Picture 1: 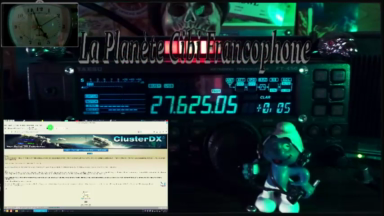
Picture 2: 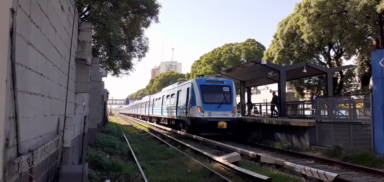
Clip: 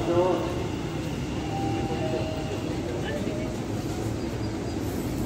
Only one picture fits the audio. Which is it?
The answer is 2